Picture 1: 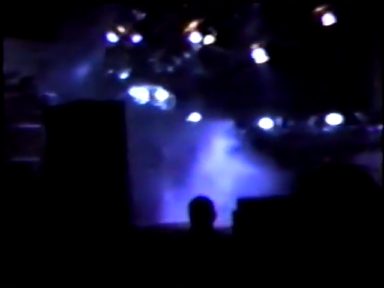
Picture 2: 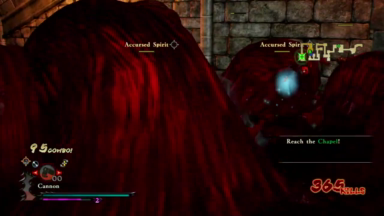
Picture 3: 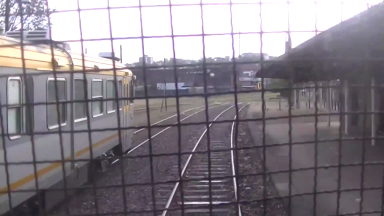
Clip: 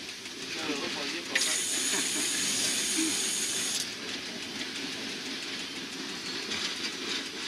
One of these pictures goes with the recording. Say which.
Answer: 3